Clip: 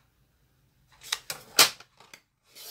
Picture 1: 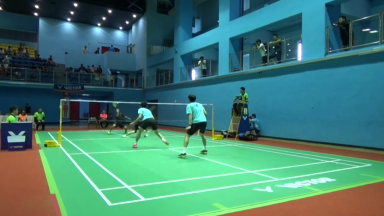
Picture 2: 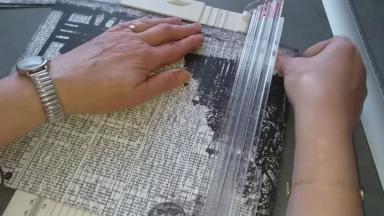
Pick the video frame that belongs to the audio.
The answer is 2